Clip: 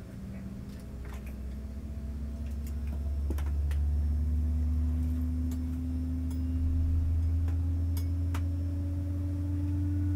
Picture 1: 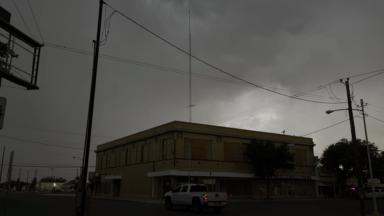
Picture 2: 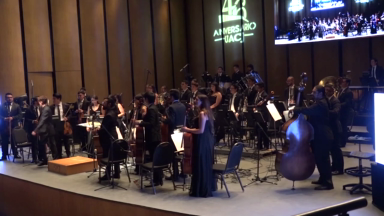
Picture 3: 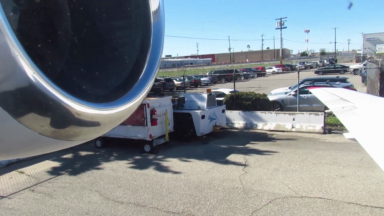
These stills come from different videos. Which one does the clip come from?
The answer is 3